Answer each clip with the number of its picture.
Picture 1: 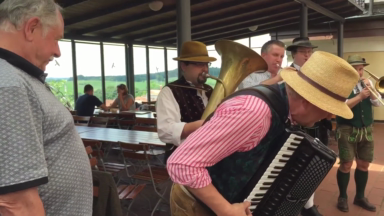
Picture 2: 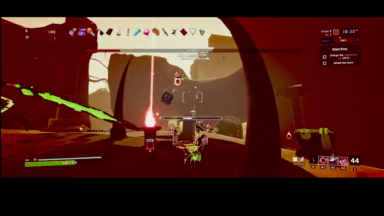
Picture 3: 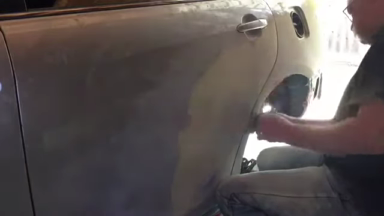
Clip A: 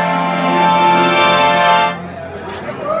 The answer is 1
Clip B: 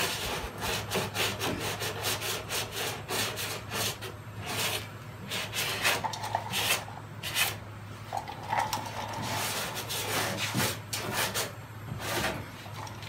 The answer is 3